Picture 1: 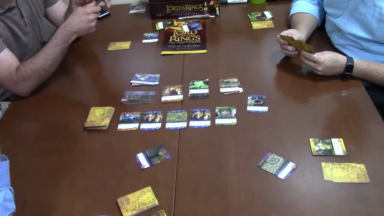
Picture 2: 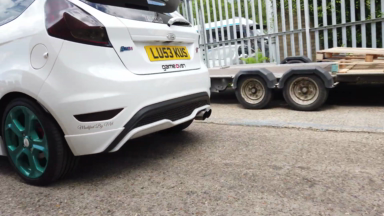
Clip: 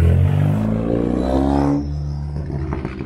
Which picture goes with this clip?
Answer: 2